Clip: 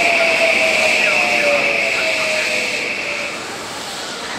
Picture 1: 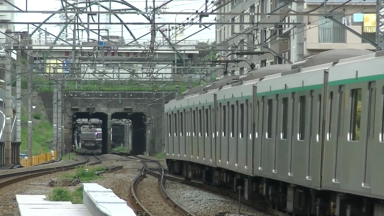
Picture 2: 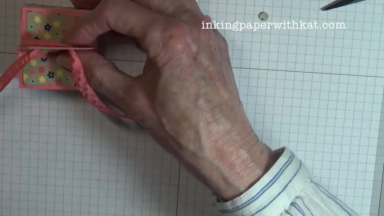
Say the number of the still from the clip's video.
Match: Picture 1